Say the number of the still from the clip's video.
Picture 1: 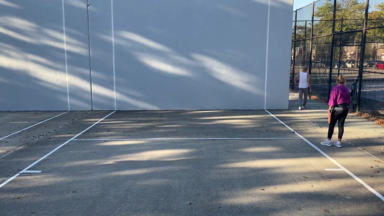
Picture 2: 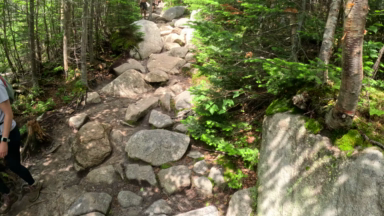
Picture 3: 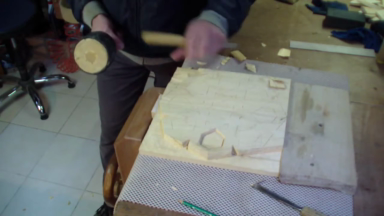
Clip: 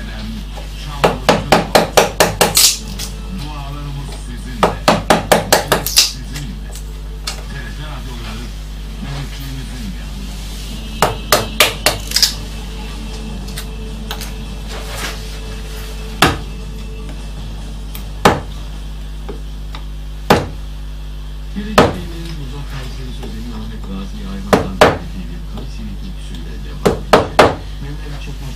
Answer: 3